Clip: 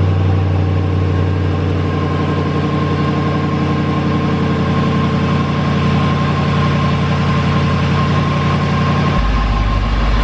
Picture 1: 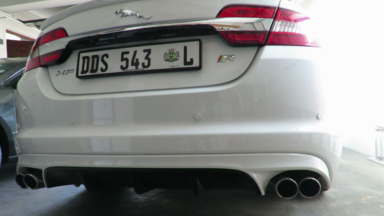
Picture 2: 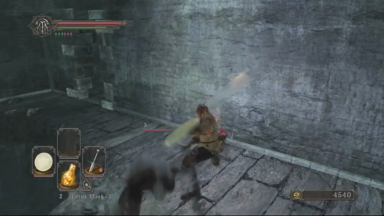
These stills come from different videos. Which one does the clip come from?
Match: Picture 1